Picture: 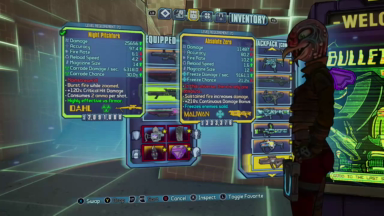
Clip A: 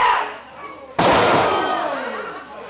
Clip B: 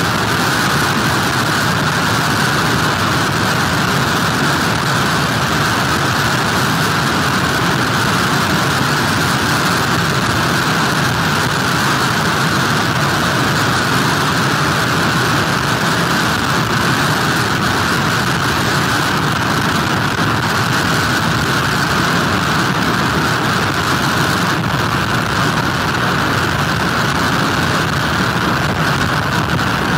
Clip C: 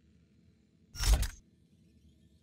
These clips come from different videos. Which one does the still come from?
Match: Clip C